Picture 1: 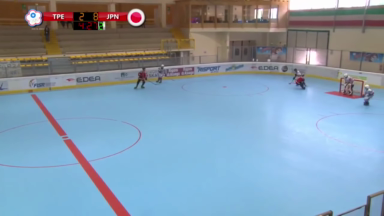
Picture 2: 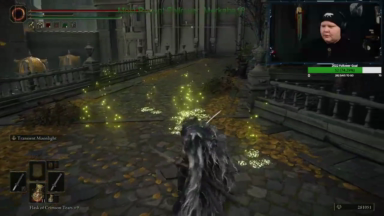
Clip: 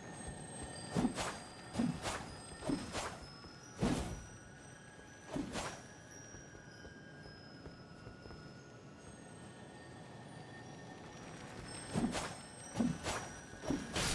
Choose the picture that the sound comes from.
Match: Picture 2